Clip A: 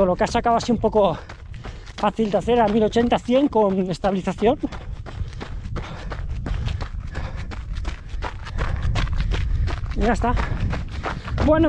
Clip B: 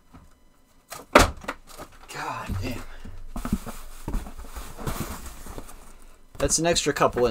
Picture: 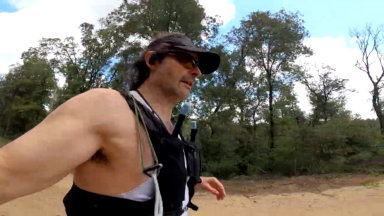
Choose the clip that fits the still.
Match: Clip A